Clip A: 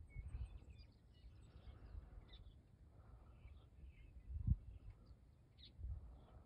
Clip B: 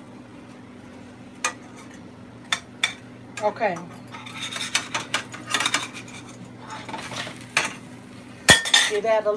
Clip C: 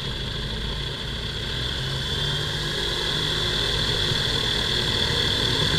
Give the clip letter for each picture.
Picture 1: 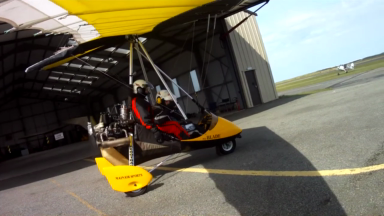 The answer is C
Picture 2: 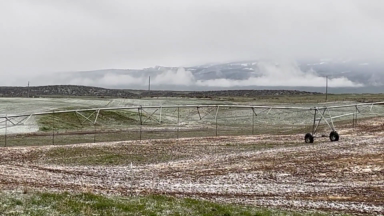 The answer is A